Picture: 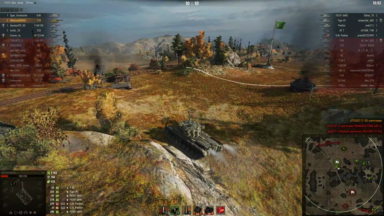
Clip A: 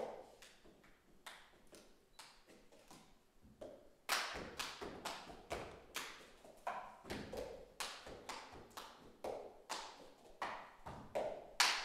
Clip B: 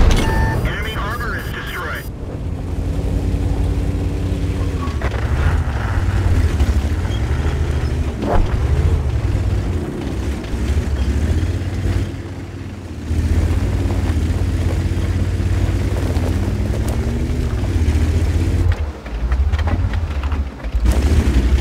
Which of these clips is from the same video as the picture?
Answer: B